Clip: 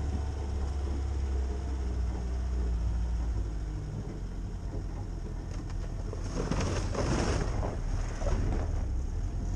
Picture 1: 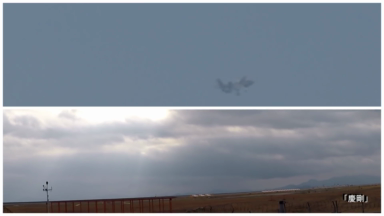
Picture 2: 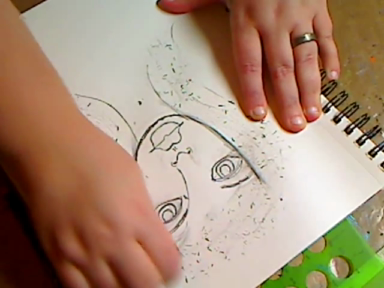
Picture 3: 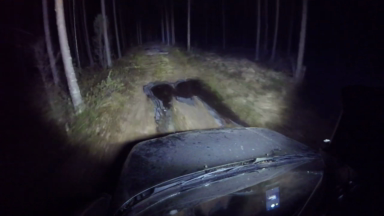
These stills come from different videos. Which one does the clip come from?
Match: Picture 3